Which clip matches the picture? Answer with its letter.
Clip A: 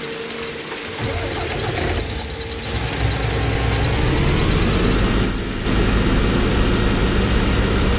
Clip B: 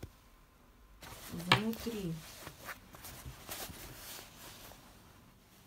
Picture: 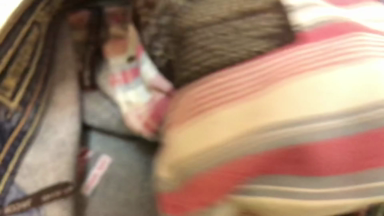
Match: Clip B